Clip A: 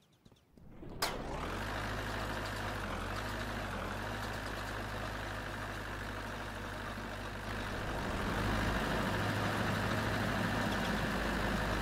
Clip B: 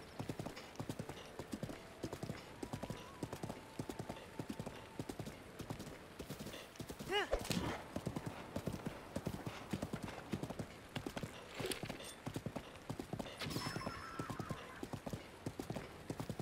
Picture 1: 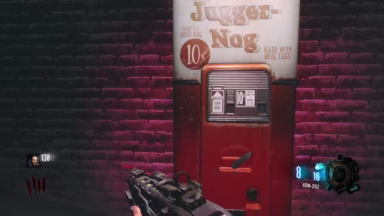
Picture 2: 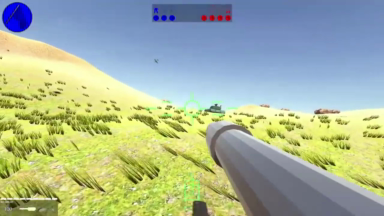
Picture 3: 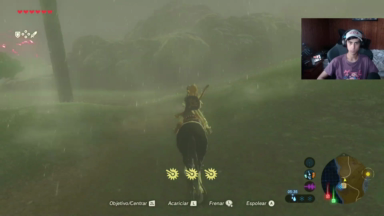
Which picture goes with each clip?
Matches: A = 2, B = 3